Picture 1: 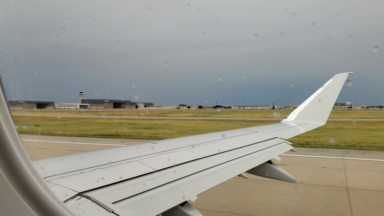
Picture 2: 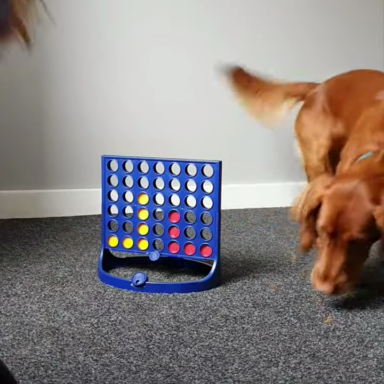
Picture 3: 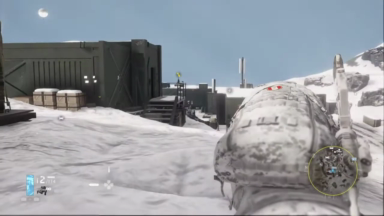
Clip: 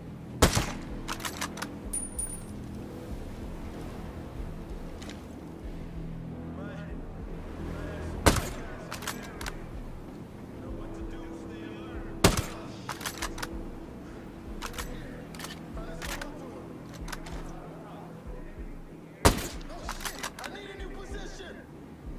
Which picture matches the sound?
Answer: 3